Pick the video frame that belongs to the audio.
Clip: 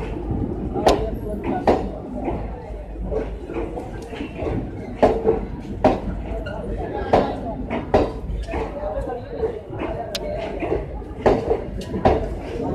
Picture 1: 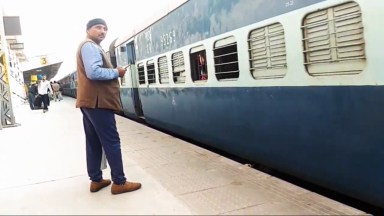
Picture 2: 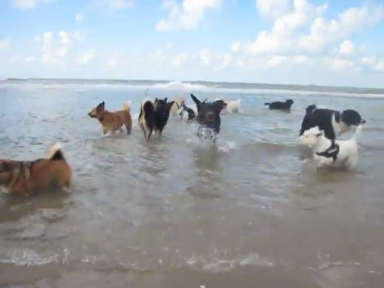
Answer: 1